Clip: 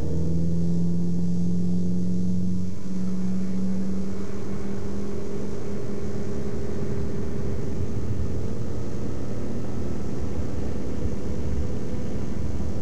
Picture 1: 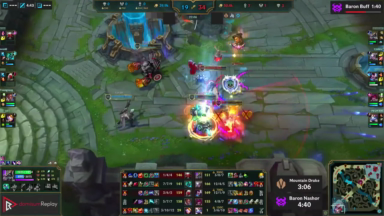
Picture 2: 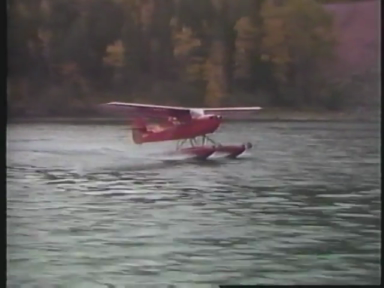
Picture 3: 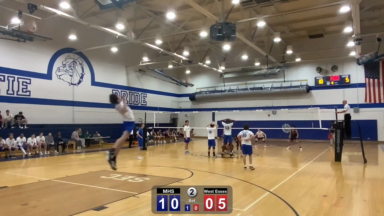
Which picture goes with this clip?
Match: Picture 2